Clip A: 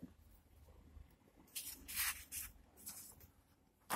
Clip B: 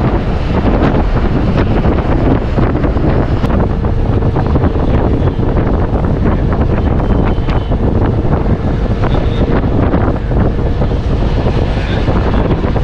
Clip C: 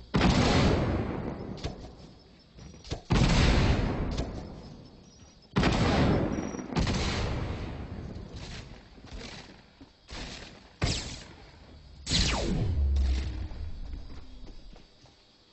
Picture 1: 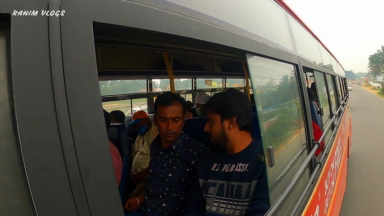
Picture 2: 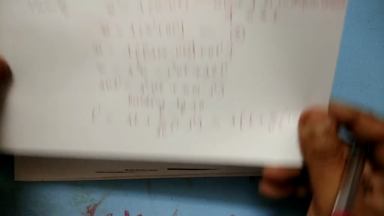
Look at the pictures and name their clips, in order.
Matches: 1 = B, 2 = A